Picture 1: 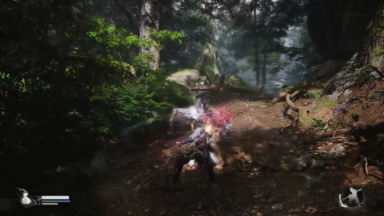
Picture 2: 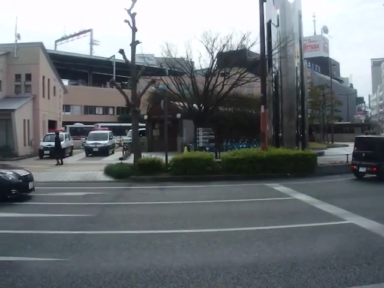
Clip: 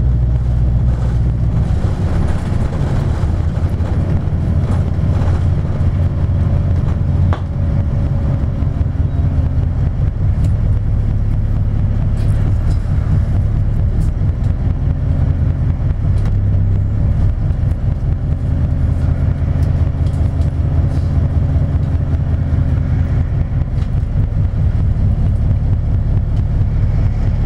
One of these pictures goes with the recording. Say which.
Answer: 2